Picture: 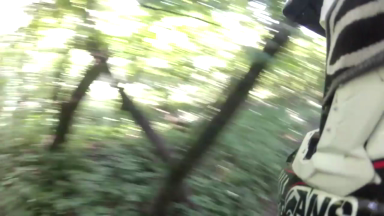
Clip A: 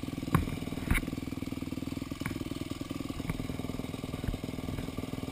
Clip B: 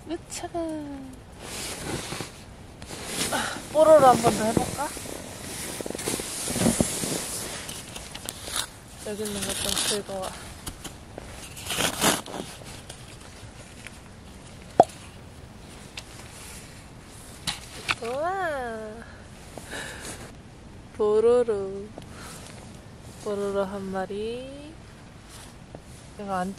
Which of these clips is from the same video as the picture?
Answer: A